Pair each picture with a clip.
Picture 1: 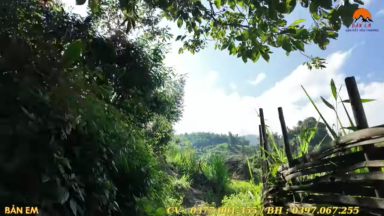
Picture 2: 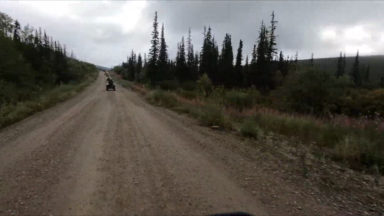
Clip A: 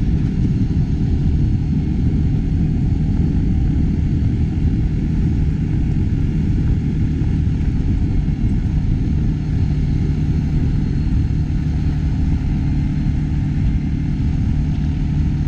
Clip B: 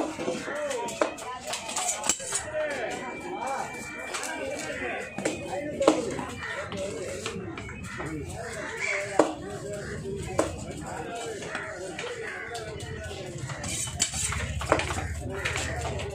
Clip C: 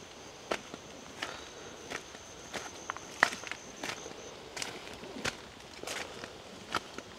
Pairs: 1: C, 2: A